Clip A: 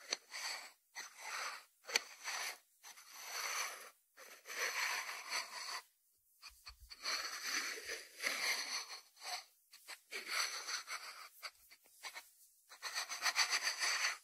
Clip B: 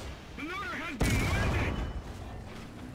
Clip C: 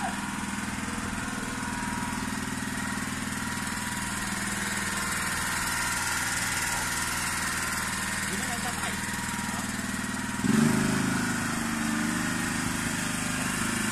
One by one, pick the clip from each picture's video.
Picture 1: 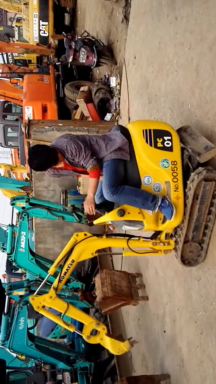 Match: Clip C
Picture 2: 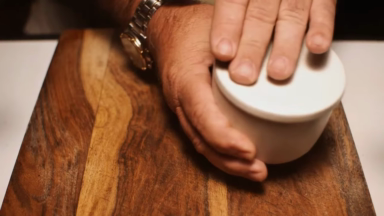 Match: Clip A